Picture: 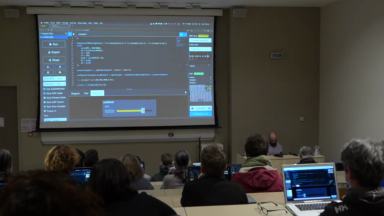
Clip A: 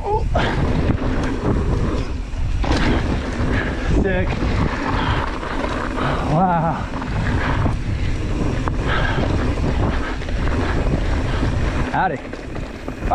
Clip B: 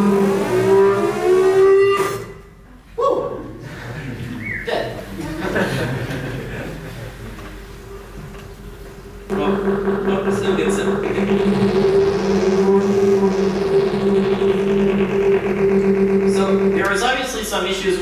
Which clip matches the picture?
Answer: B